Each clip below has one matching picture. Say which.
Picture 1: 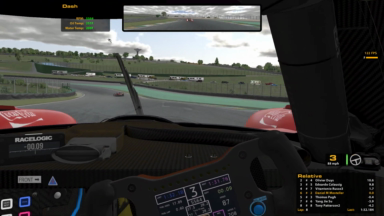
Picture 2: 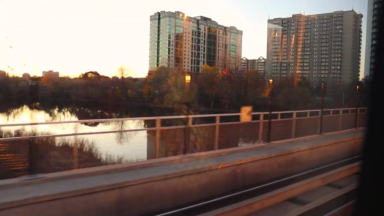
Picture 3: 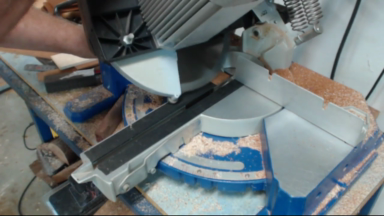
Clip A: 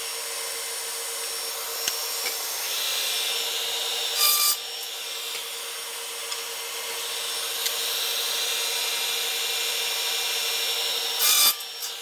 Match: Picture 3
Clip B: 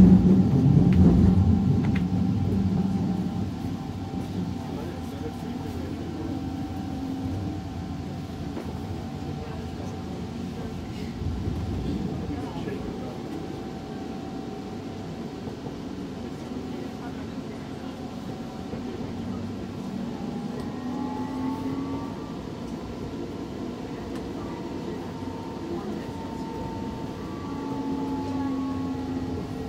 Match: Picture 2